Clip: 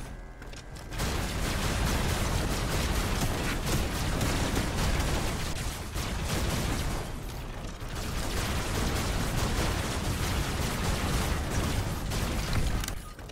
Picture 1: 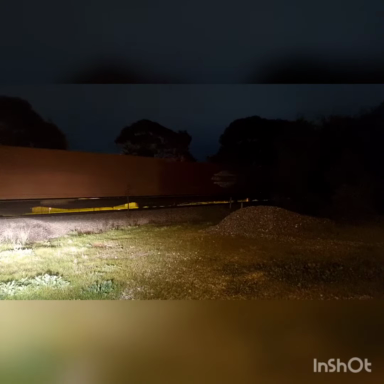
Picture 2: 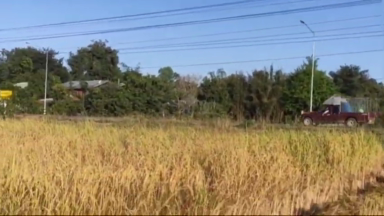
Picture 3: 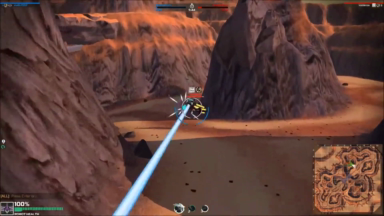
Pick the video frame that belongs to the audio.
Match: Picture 3